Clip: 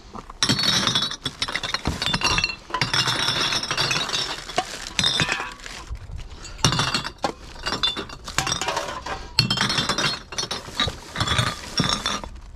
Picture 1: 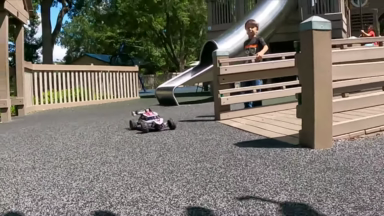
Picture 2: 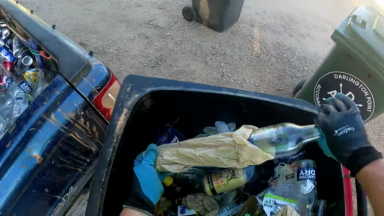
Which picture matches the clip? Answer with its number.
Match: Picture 2